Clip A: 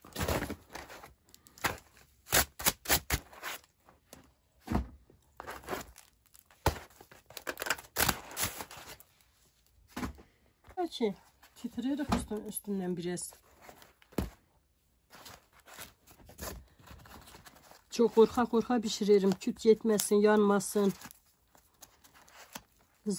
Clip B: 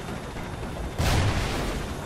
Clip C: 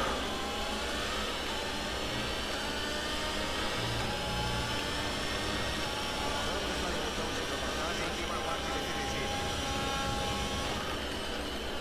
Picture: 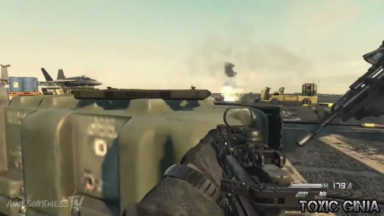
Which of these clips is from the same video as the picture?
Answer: B